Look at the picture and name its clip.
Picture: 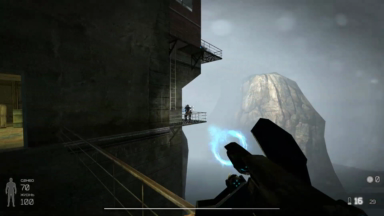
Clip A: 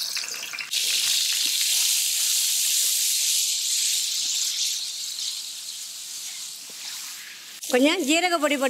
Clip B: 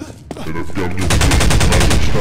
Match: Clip B